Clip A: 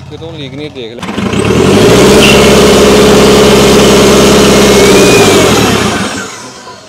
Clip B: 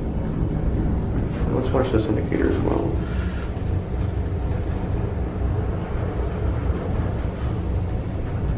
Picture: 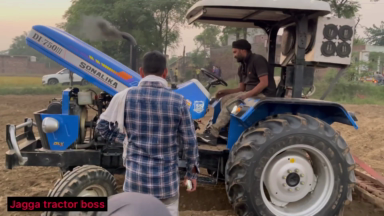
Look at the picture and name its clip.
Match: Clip A